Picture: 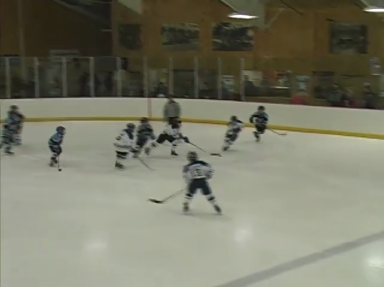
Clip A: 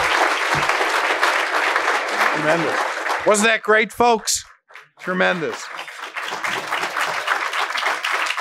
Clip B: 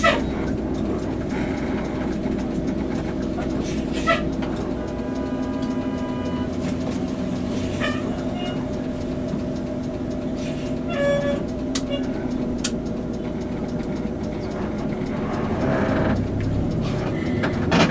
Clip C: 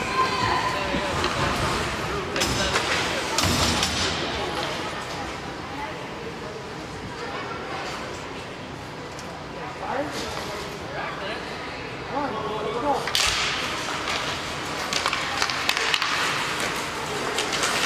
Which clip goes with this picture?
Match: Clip C